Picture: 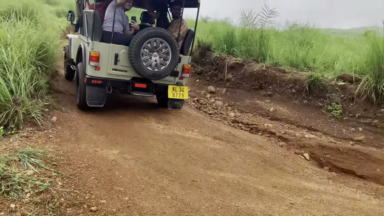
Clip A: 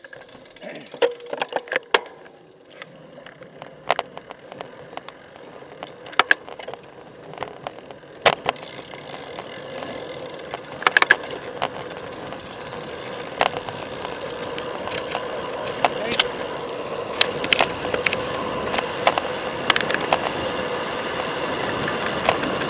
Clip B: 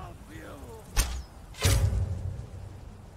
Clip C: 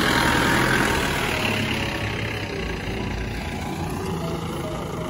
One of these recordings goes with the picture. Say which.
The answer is C